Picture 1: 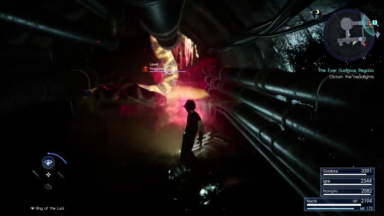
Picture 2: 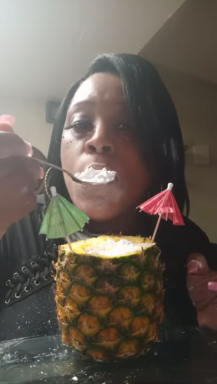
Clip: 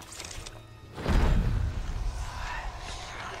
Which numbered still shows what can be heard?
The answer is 1